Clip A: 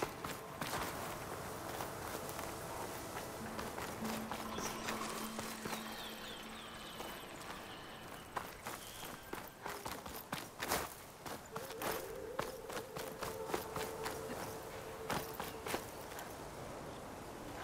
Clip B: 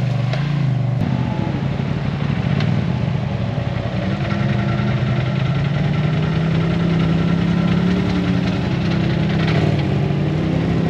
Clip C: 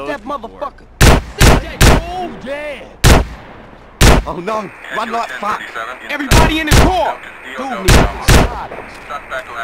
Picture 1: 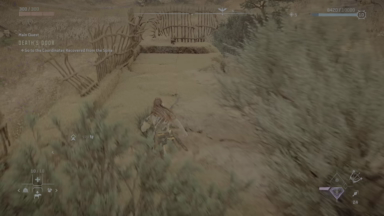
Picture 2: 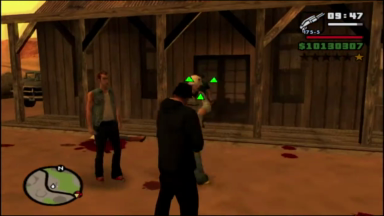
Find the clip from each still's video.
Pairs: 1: A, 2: C